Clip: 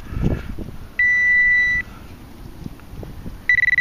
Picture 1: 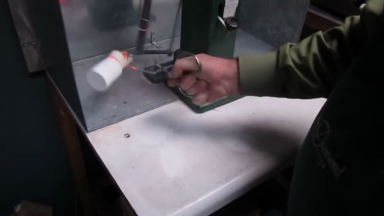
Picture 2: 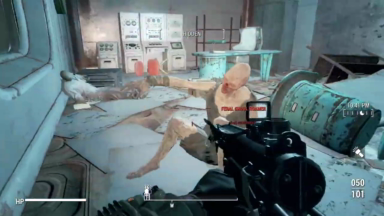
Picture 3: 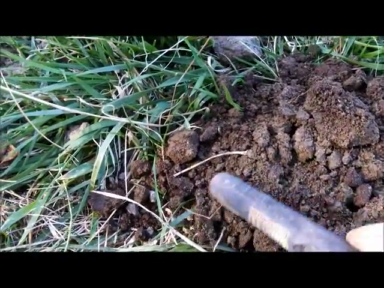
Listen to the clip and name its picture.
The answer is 3